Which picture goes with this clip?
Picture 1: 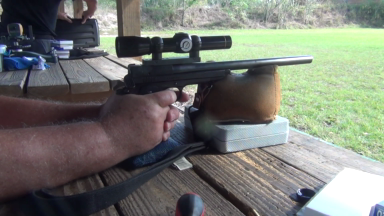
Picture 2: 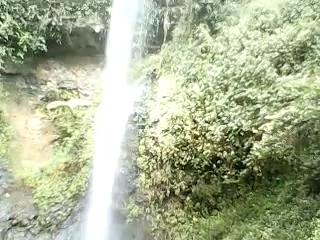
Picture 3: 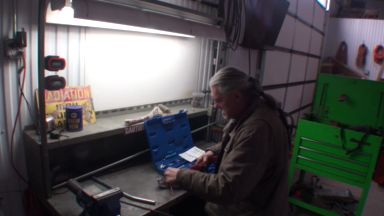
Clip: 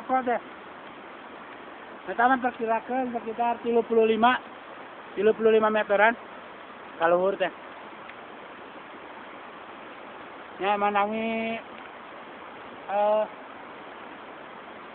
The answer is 2